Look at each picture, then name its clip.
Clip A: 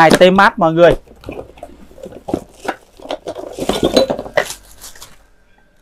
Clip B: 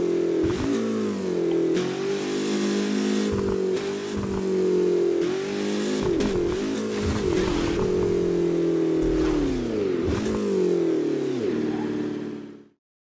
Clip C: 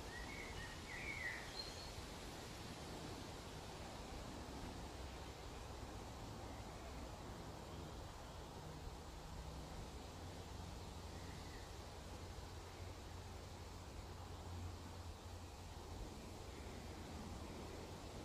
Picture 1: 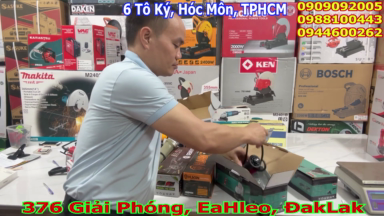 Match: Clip A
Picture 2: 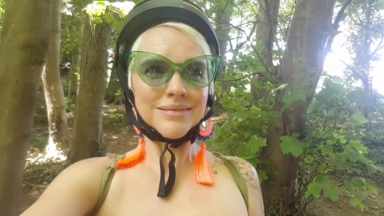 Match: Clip C